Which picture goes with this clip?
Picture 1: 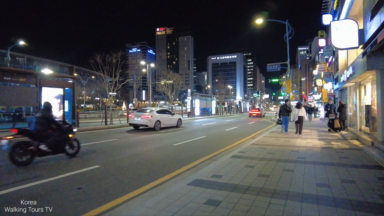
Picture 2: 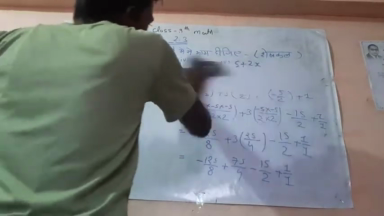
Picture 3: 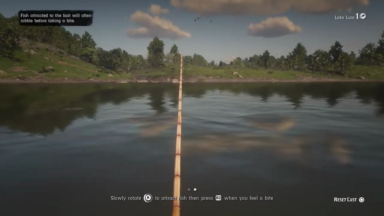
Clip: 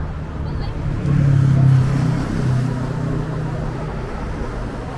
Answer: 1